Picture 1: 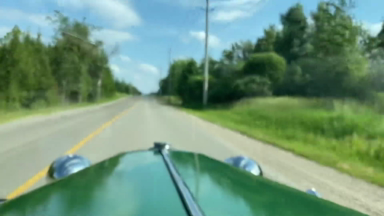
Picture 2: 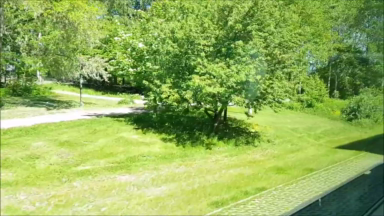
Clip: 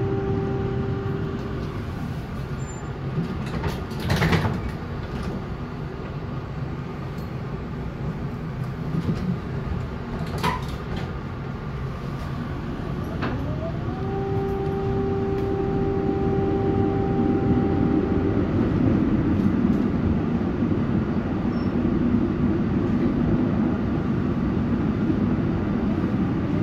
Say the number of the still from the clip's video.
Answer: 2